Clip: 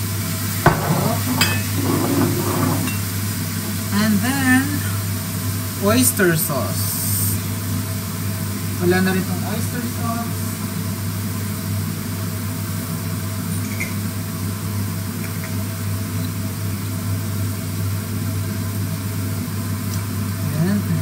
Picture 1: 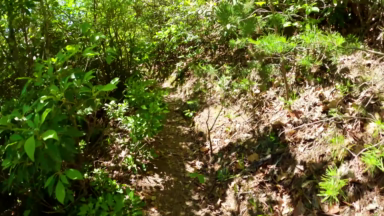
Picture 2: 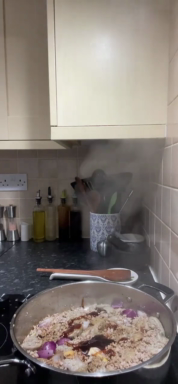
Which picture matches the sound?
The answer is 2